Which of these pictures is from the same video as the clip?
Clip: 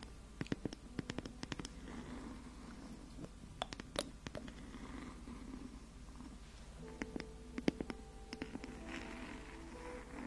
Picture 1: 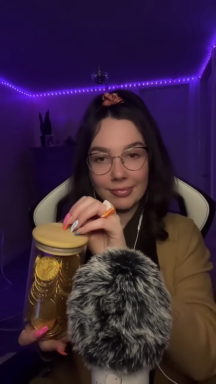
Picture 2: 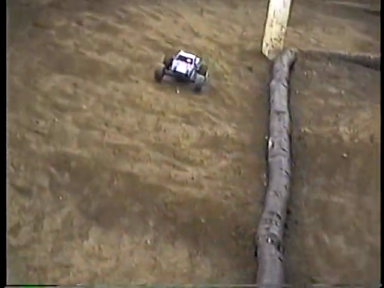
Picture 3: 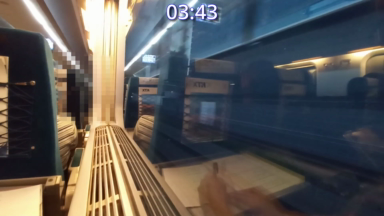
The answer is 1